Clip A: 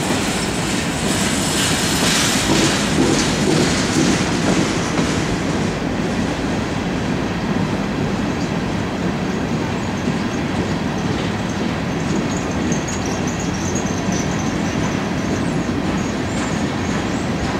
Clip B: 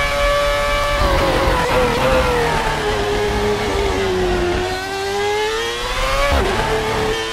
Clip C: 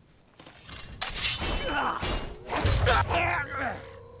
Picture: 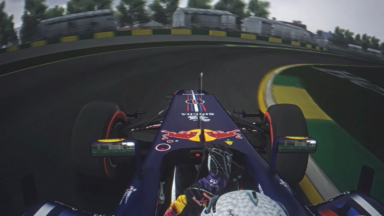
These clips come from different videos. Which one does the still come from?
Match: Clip B